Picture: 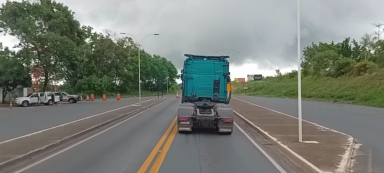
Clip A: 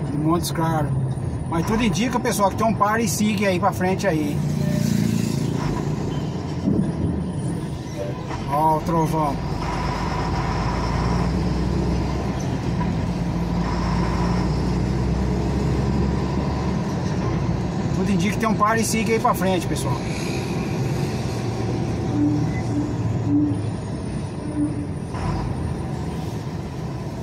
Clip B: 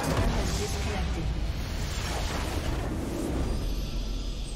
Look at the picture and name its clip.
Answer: A